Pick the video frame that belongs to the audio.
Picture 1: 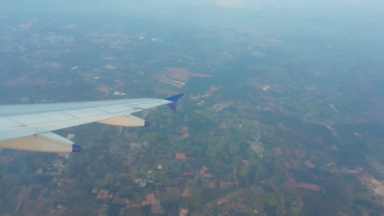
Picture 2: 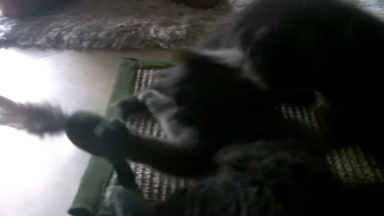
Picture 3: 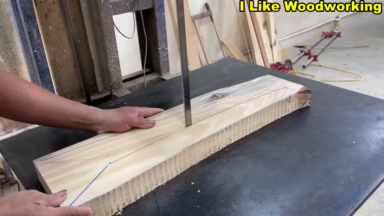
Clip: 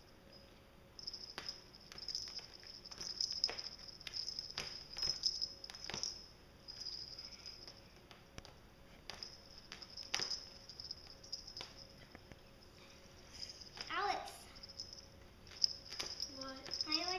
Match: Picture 2